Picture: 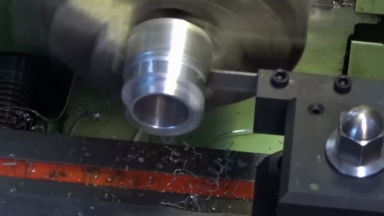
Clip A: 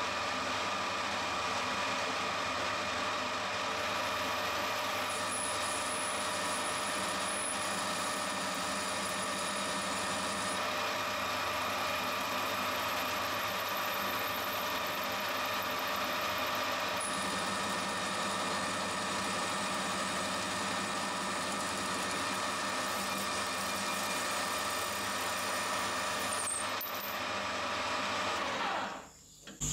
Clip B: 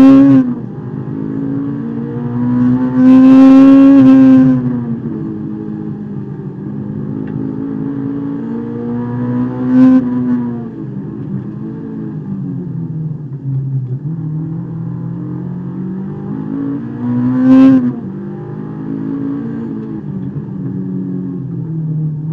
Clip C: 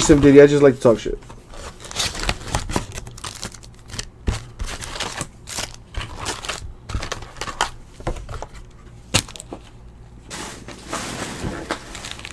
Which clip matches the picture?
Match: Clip A